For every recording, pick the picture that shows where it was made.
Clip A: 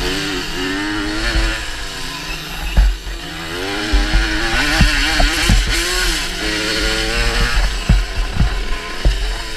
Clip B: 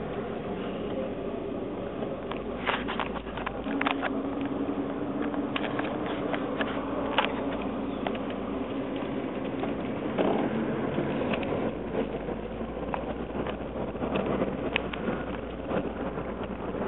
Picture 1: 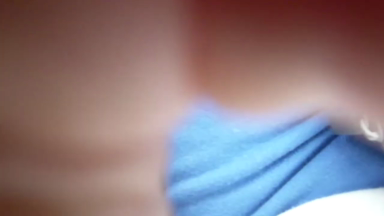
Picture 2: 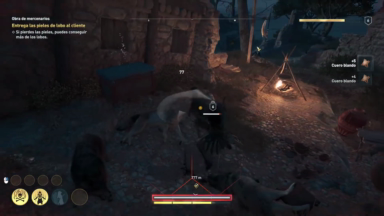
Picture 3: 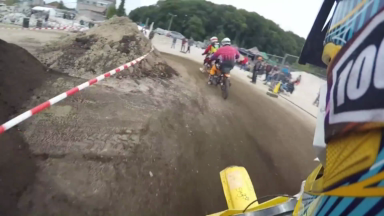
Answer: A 3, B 1